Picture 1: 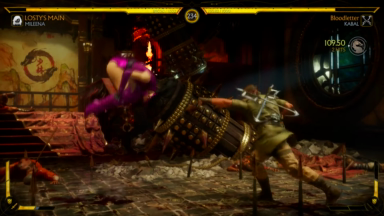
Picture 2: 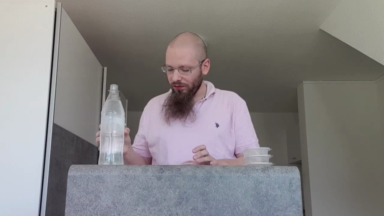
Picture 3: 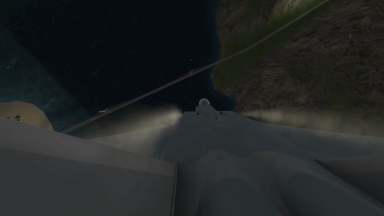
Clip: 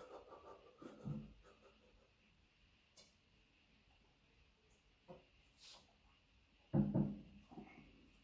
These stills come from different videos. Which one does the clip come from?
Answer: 2